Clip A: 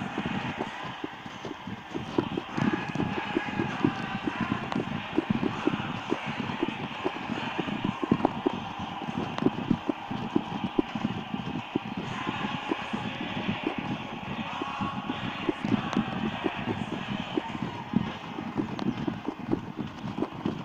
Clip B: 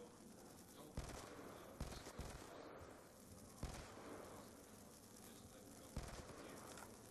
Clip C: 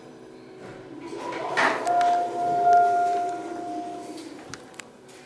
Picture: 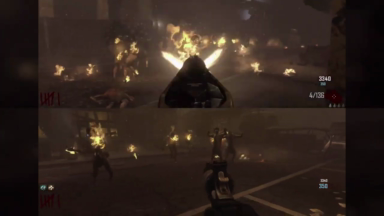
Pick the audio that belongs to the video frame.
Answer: B